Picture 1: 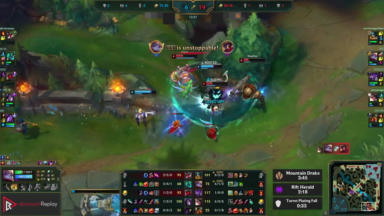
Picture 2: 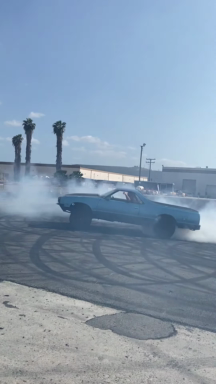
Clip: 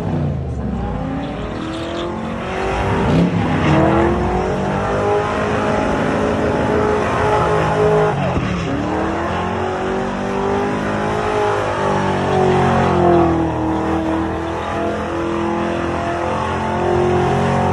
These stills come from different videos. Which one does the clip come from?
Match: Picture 2